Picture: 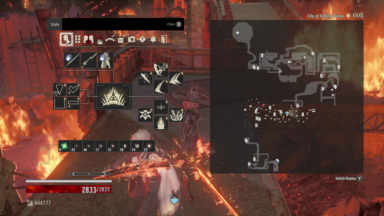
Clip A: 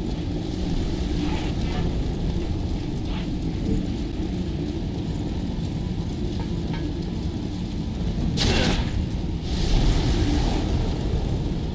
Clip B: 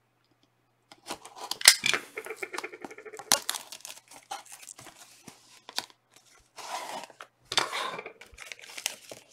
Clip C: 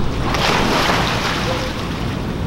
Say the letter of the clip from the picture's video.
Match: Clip A